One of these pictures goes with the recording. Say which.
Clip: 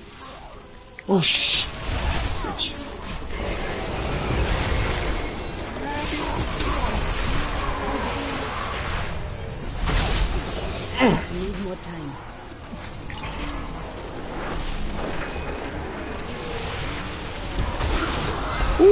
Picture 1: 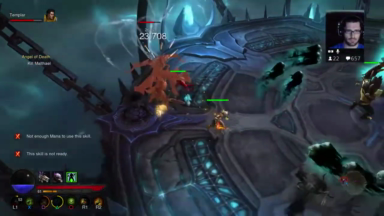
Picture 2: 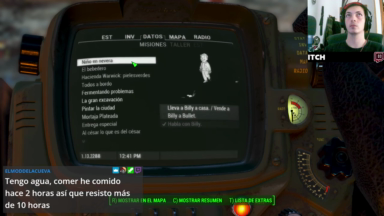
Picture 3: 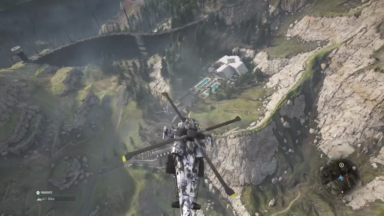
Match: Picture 1